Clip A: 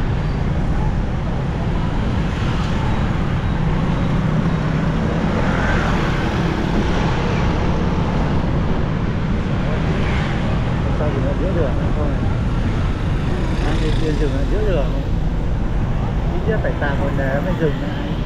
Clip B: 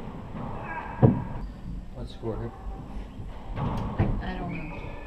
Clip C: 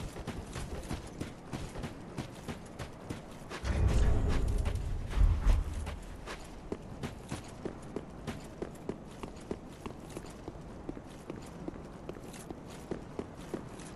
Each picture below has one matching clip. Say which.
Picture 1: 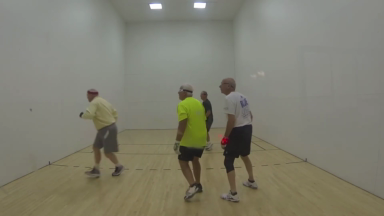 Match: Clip B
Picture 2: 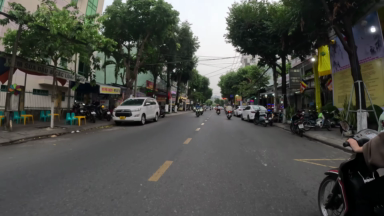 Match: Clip A